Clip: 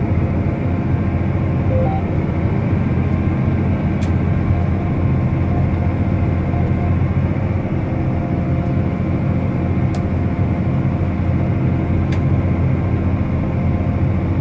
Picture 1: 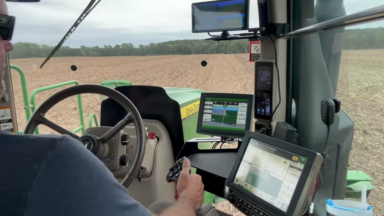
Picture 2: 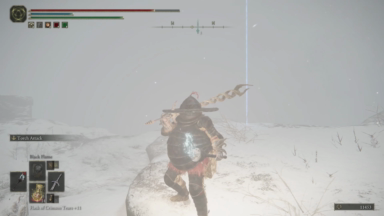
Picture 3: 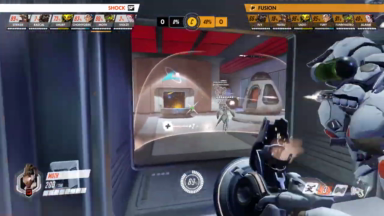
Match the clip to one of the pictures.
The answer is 1